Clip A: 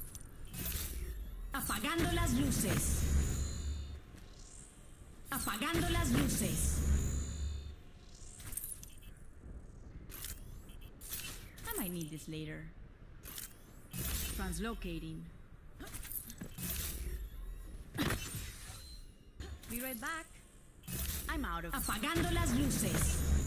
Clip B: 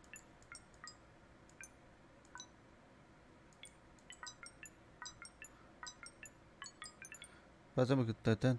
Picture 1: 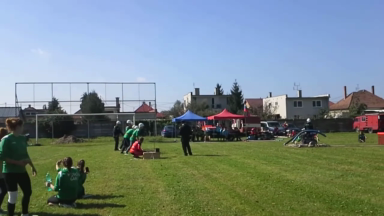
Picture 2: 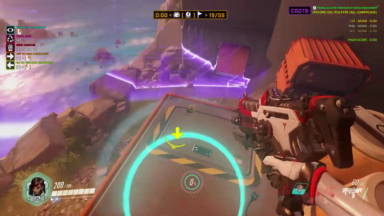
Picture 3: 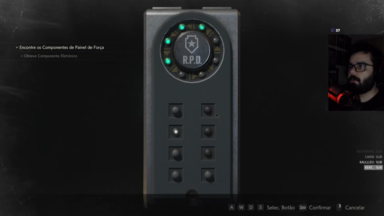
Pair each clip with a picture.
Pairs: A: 2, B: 3